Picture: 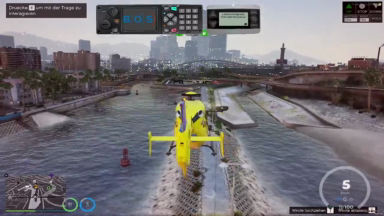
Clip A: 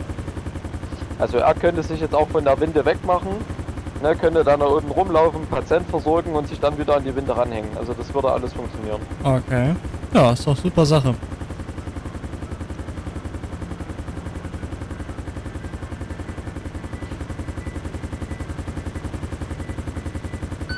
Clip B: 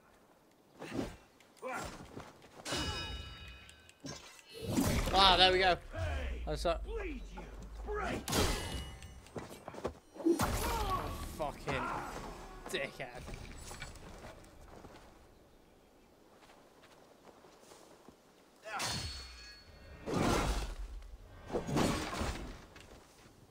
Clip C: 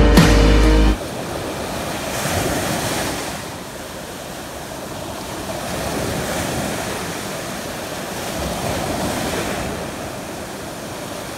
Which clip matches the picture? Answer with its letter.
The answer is A